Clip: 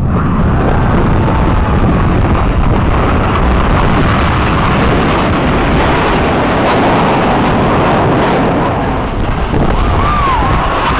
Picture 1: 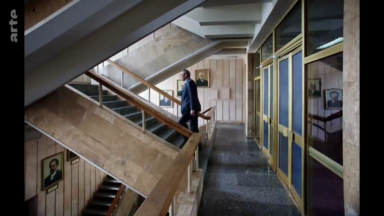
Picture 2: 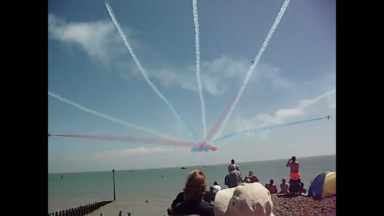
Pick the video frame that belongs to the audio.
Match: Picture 2